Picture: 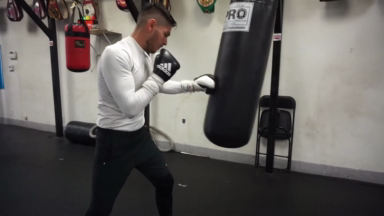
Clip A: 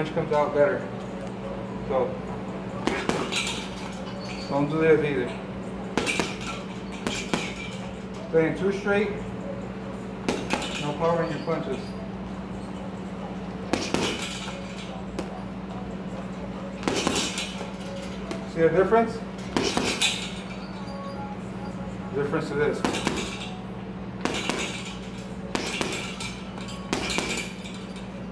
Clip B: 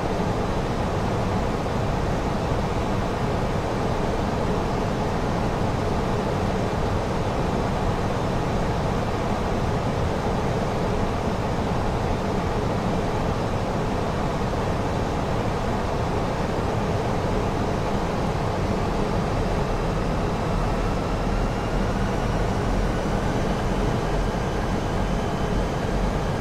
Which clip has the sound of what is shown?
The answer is A